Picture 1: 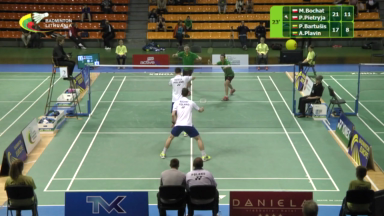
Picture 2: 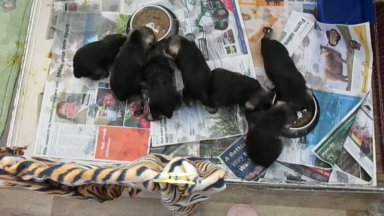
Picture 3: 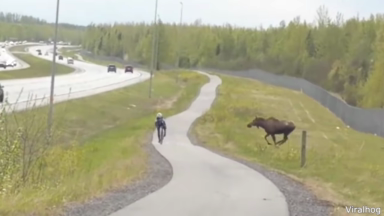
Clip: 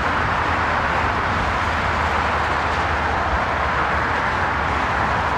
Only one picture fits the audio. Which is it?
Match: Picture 3